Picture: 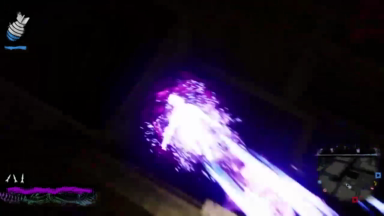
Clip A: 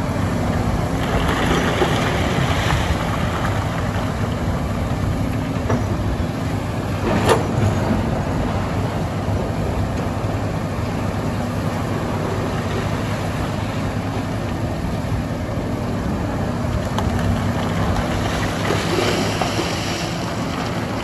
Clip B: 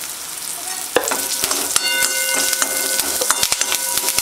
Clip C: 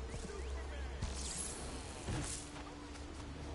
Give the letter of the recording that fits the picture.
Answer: C